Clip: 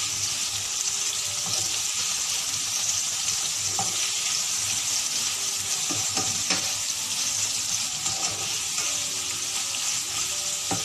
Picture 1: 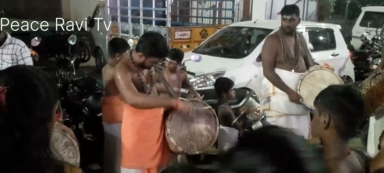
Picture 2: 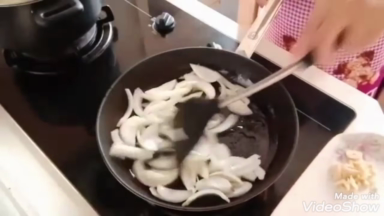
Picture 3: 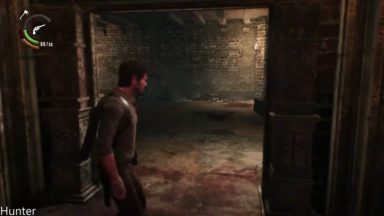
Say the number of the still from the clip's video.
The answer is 2